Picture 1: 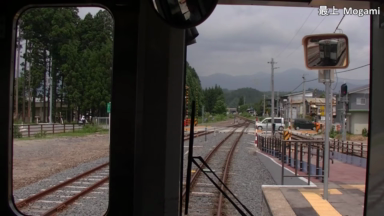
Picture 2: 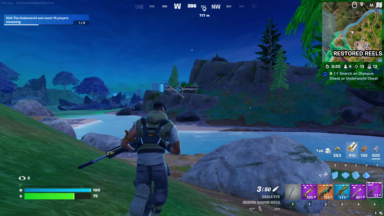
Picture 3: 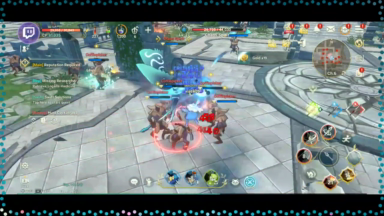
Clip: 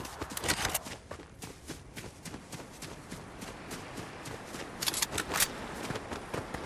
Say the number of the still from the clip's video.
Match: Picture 2